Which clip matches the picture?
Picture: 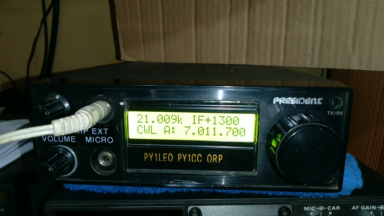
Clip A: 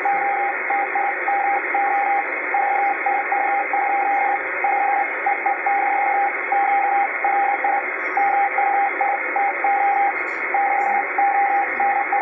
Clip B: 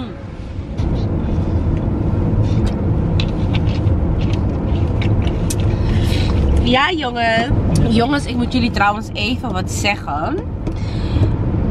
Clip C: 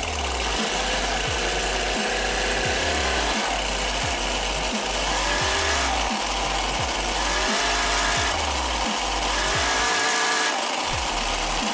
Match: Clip A